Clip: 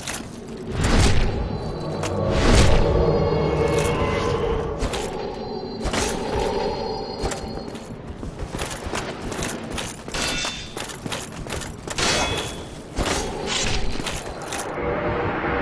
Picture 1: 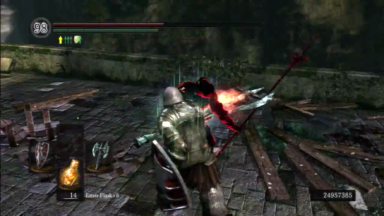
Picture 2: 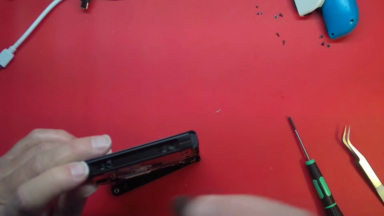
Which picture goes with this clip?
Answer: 1